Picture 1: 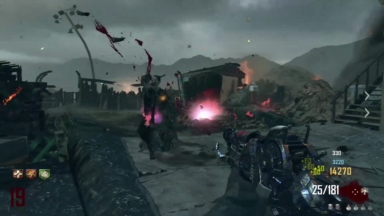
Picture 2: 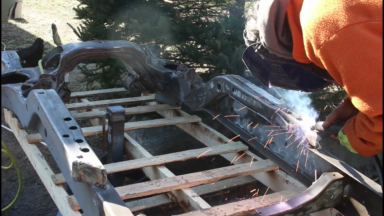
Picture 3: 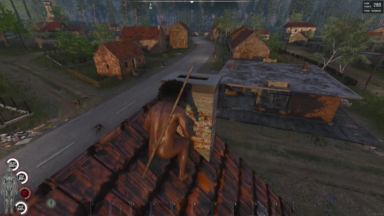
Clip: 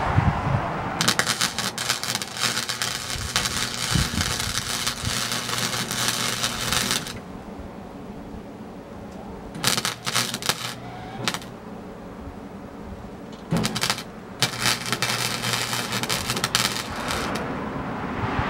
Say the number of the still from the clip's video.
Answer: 2